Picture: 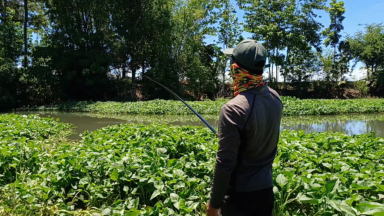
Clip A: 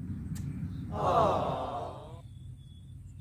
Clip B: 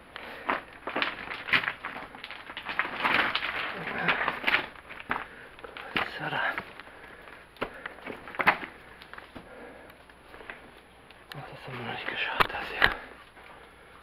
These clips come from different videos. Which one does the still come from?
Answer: A